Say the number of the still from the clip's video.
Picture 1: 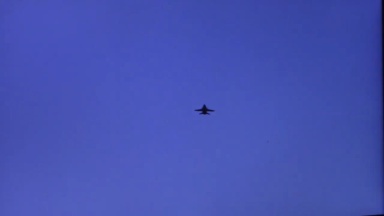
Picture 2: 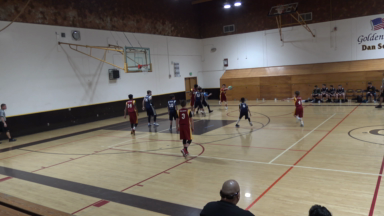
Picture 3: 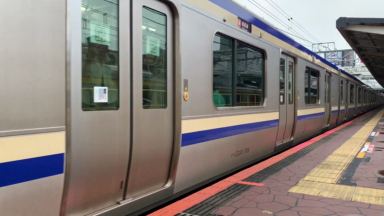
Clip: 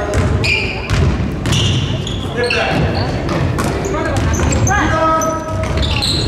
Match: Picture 2